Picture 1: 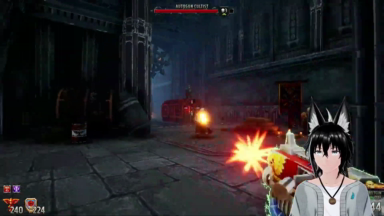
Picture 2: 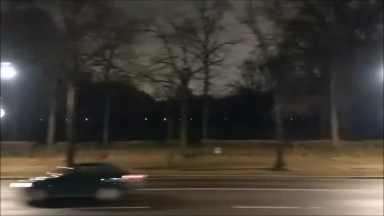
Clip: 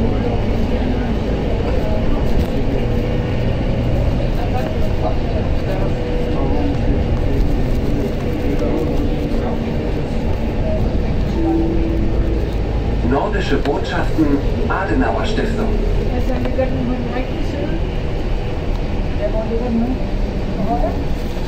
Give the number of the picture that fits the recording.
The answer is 2